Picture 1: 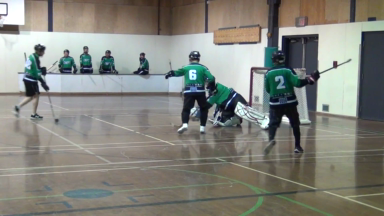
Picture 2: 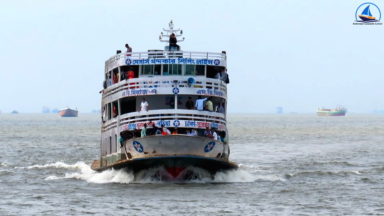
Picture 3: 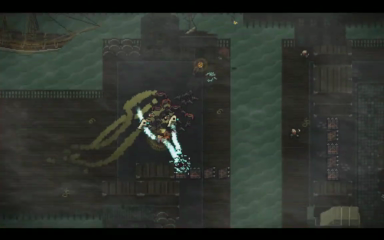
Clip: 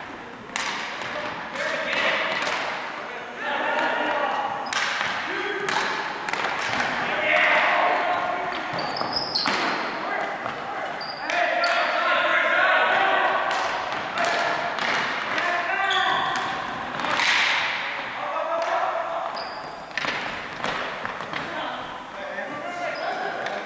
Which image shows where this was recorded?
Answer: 1